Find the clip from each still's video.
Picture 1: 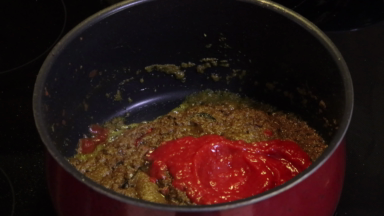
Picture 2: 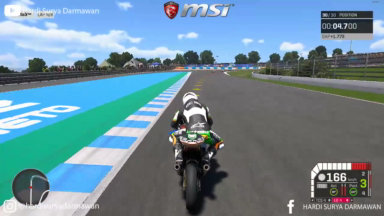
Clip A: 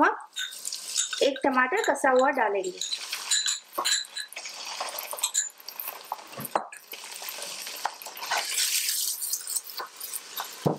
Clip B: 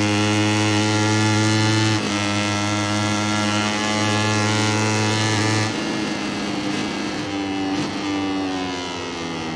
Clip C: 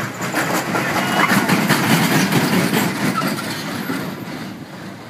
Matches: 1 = A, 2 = B